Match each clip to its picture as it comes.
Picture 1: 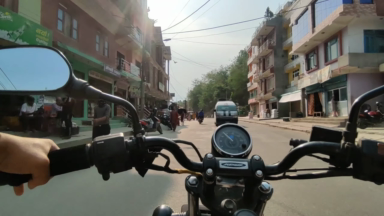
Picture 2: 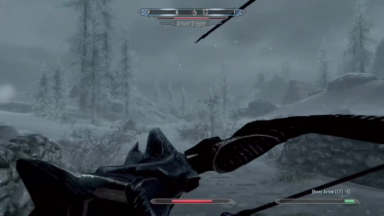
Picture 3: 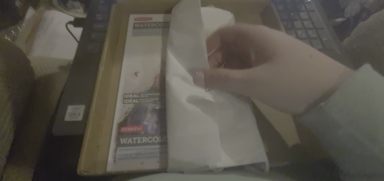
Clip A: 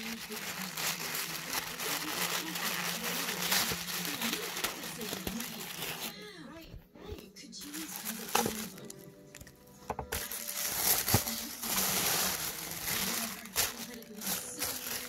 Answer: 3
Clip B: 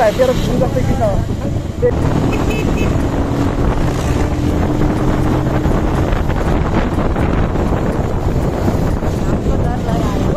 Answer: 1